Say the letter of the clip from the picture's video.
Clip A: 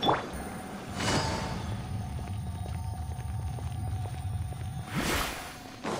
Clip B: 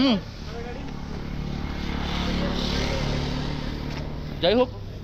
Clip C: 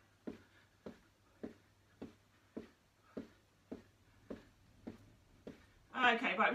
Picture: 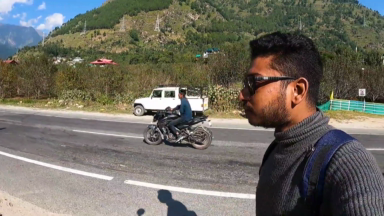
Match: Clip B